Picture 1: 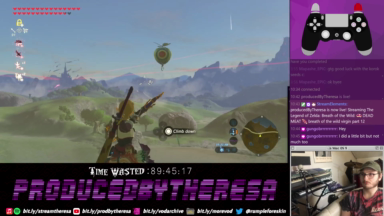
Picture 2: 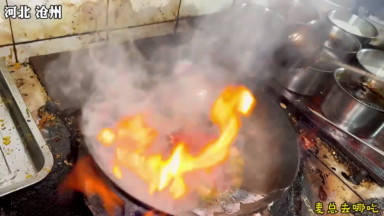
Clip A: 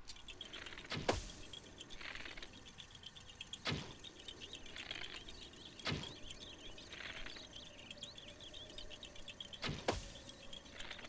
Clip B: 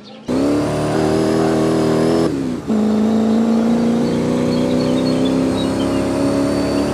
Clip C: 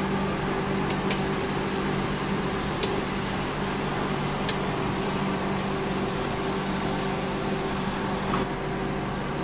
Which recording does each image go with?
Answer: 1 A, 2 C